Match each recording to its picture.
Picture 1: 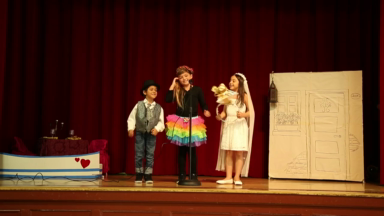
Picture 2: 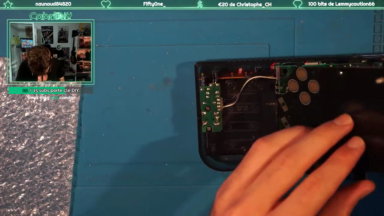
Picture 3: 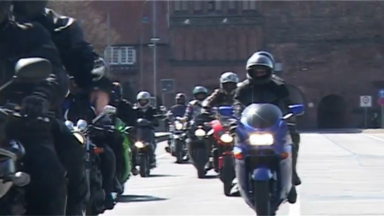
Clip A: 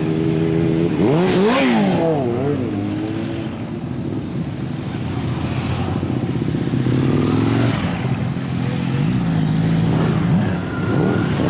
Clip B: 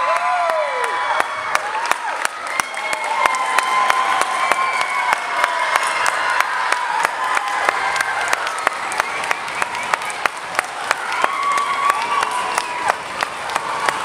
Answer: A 3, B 1